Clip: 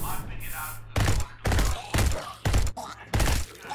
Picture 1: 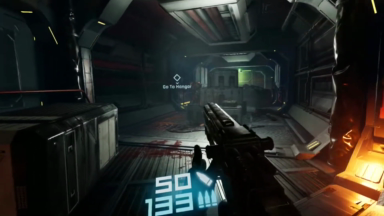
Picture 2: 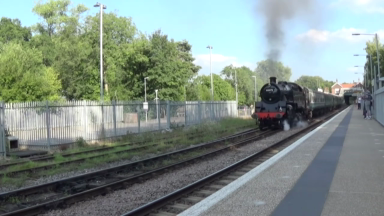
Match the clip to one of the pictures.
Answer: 1